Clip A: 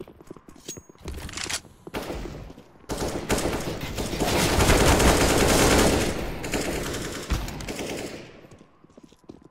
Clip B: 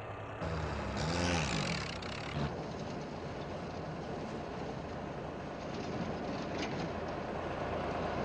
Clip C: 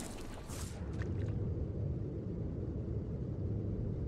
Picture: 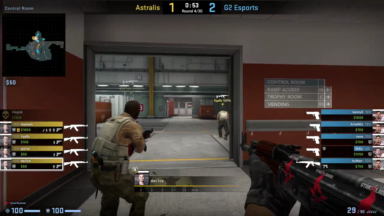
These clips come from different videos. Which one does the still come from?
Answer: A